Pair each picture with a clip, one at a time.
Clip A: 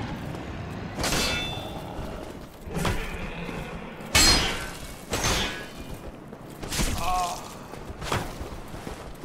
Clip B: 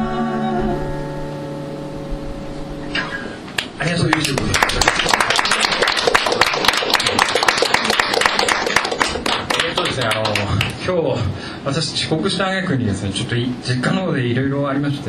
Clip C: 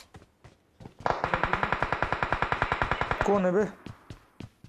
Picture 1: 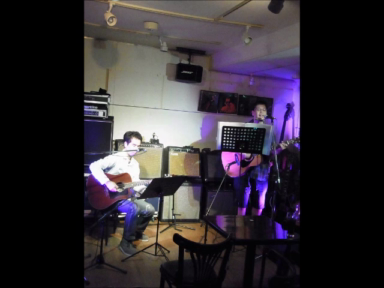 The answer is B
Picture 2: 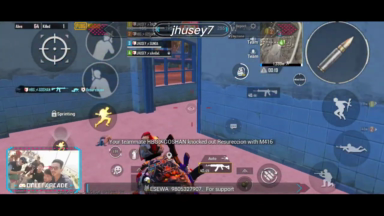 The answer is C